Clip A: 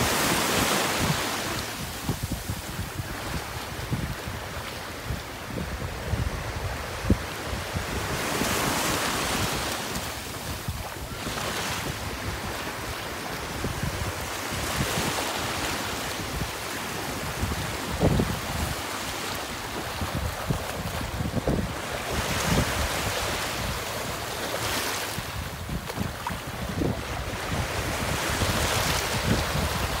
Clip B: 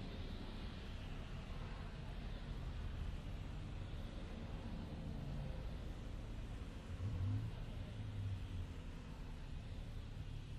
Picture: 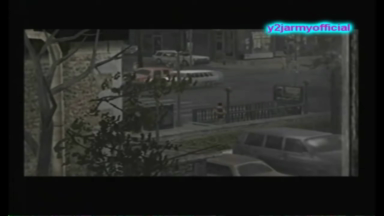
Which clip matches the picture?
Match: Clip B